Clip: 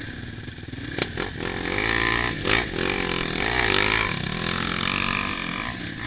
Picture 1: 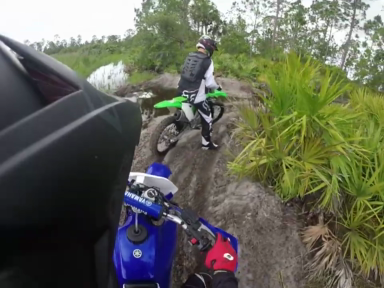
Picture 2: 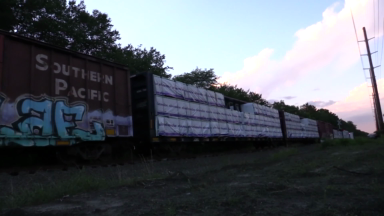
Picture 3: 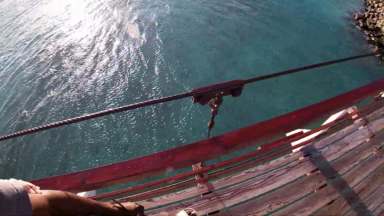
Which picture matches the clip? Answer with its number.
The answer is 1